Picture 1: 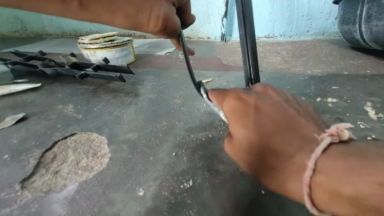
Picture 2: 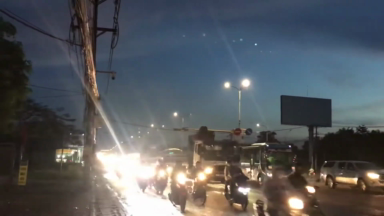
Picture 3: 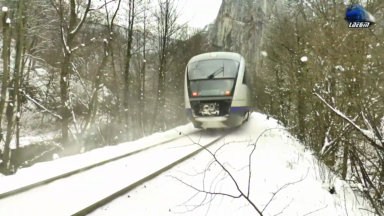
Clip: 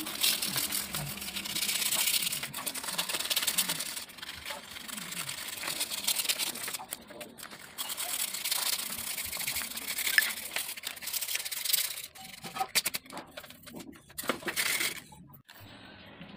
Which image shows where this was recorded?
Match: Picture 1